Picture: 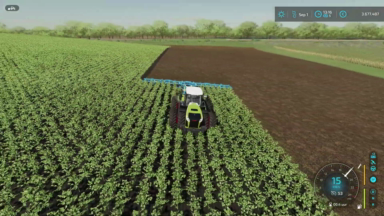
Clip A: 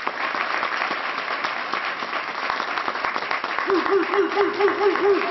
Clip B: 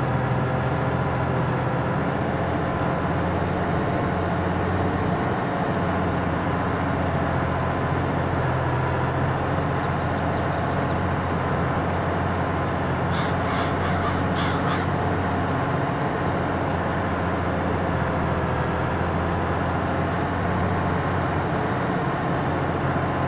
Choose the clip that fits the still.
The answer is B